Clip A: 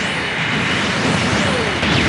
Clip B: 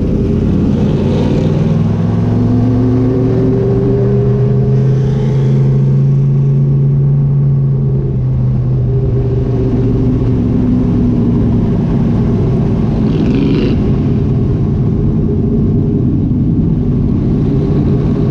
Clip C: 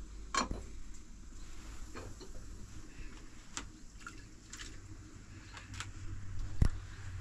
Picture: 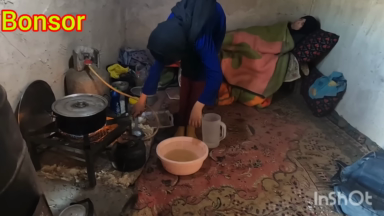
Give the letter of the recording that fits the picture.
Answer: C